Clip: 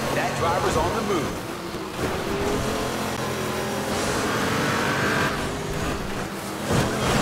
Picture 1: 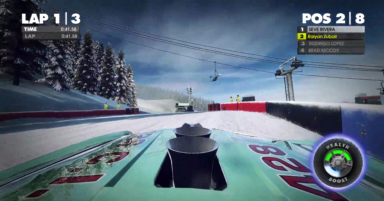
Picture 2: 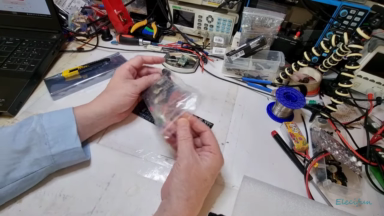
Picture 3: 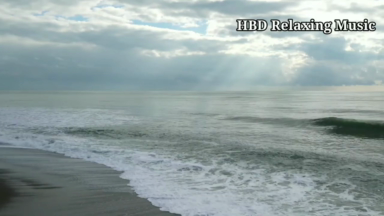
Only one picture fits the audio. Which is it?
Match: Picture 1